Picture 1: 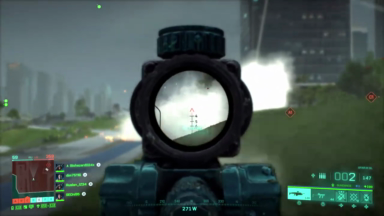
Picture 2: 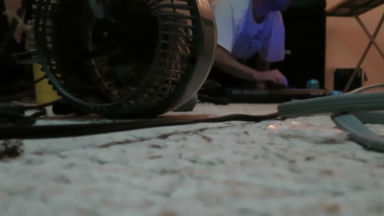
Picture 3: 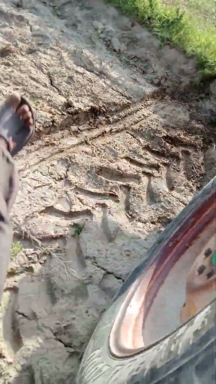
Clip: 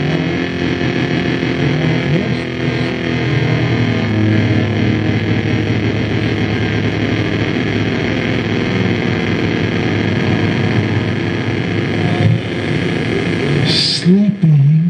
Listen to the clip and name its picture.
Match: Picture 2